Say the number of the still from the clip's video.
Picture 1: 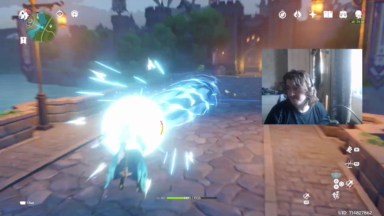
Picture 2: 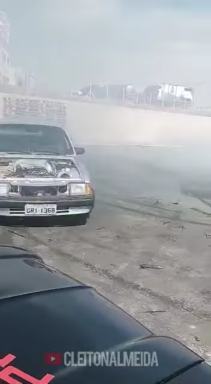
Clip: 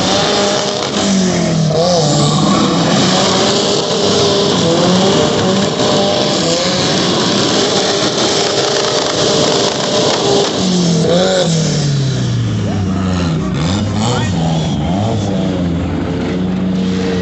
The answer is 2